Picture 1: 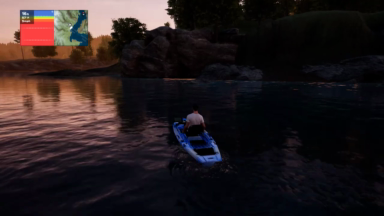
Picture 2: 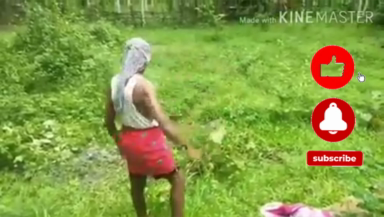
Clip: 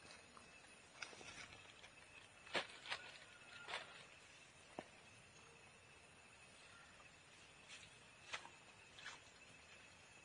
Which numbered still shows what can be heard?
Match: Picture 2